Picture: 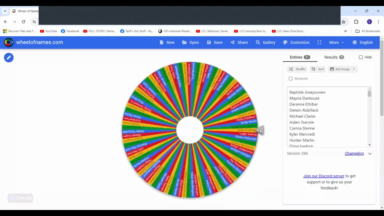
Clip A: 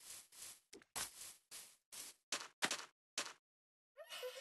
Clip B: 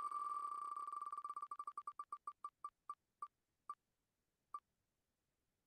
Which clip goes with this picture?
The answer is B